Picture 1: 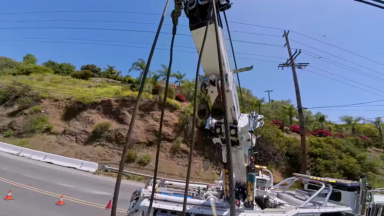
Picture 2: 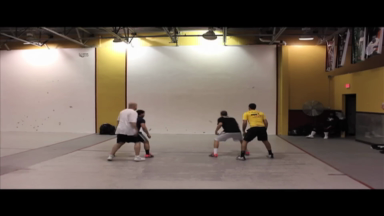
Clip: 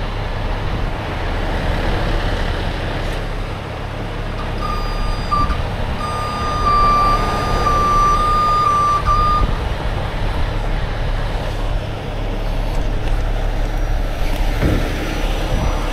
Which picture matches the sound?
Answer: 1